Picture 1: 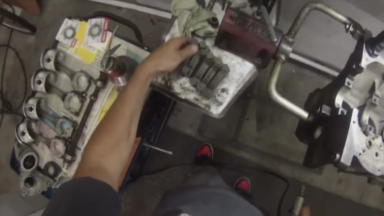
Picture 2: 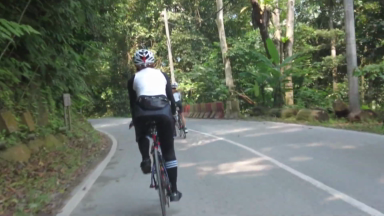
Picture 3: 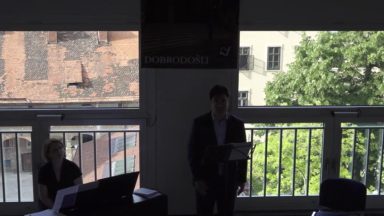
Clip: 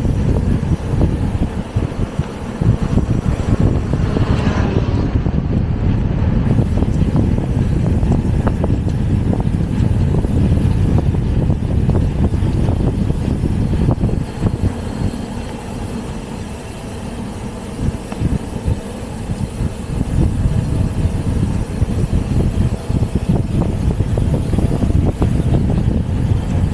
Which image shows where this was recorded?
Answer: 2